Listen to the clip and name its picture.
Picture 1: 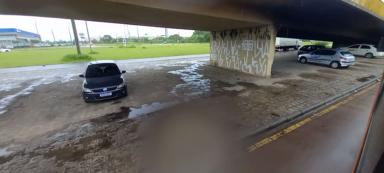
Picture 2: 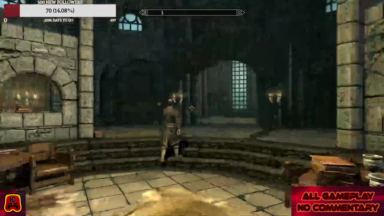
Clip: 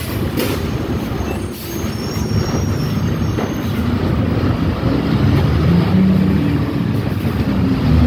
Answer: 1